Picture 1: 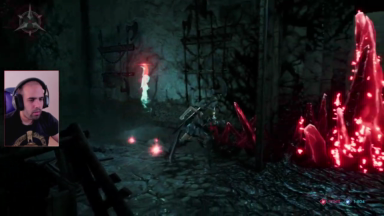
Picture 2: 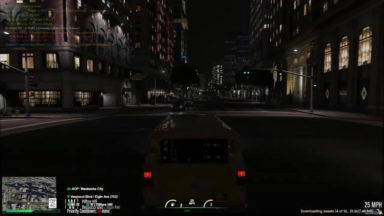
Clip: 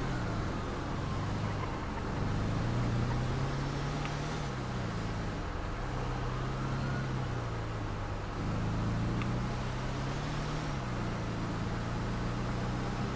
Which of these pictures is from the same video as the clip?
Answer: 2